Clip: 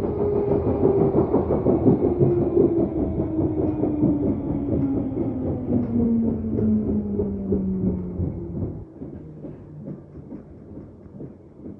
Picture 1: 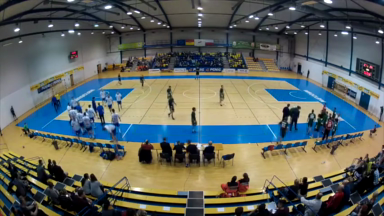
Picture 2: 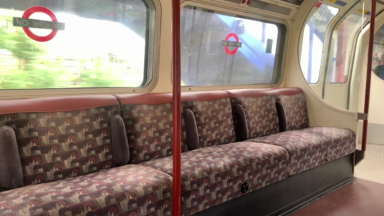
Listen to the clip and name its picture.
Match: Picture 2